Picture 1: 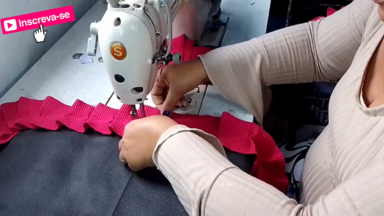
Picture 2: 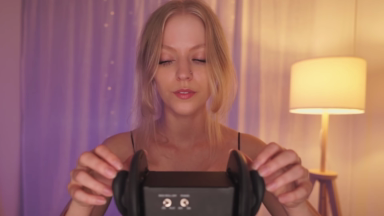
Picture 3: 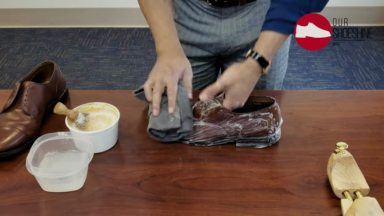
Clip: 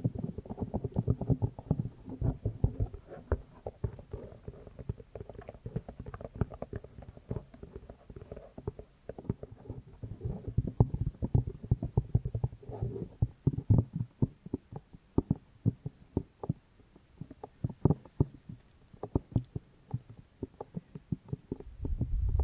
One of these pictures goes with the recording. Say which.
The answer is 2